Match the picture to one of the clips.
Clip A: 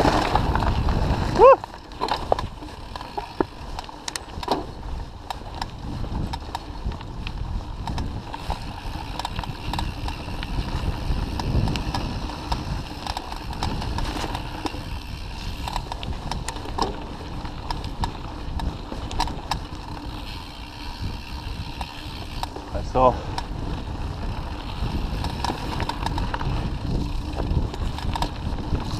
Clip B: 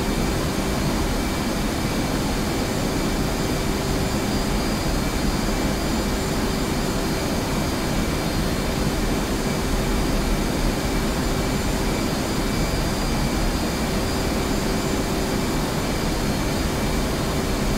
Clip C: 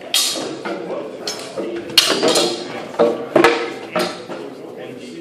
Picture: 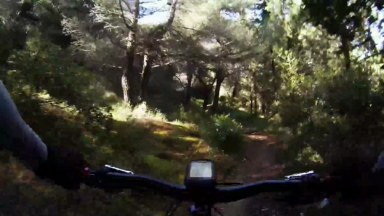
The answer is A